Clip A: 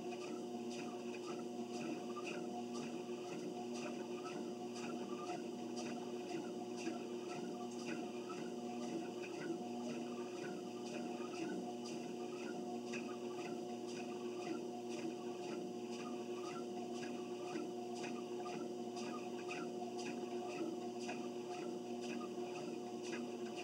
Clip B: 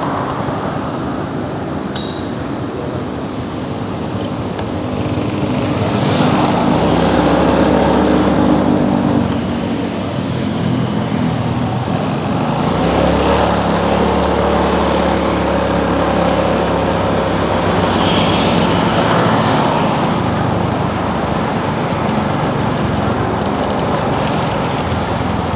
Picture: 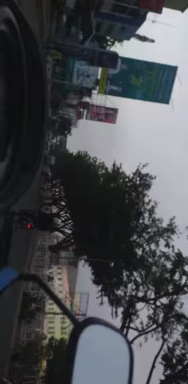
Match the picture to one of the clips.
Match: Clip B